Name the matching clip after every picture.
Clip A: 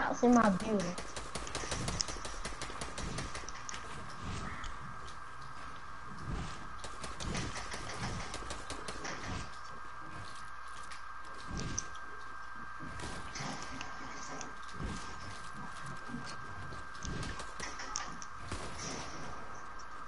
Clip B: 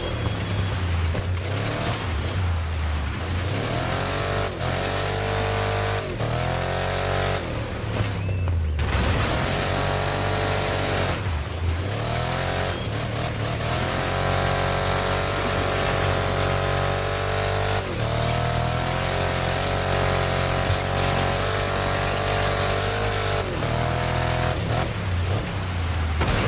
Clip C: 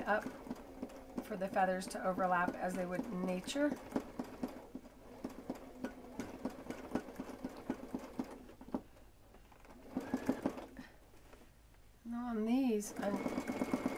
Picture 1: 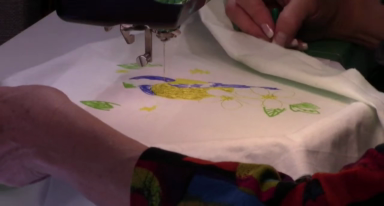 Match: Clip C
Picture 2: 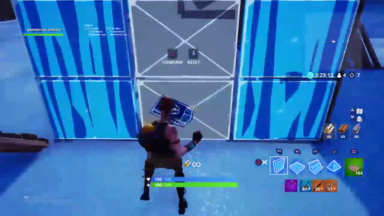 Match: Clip A